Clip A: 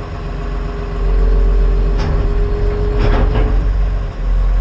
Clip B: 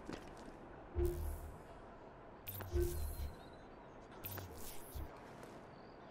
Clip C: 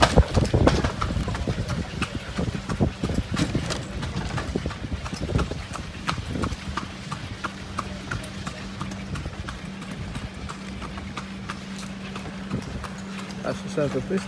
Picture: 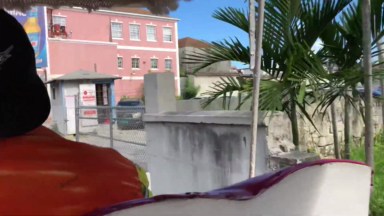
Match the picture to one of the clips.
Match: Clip C